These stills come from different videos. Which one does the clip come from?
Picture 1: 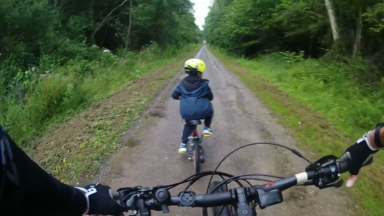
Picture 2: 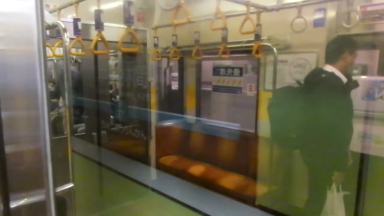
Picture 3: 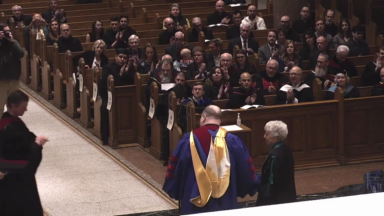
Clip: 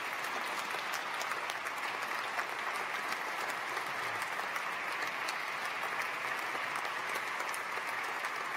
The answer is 3